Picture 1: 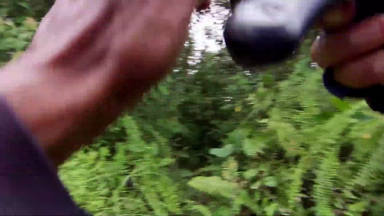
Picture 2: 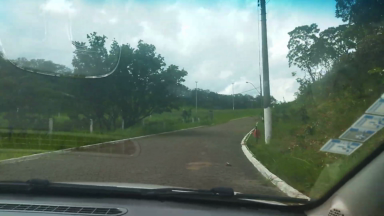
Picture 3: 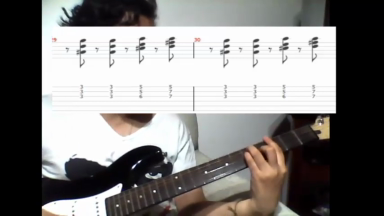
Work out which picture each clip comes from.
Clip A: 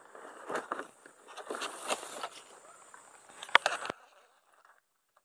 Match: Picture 1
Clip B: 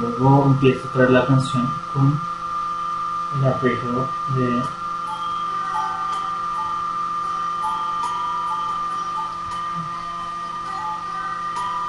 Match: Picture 3